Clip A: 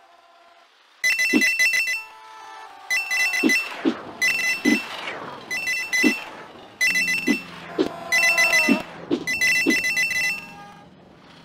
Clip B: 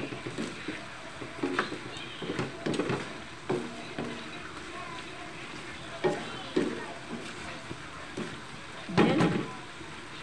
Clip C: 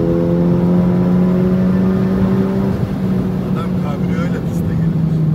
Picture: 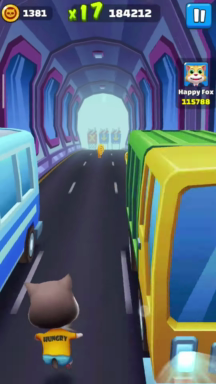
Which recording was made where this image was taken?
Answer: A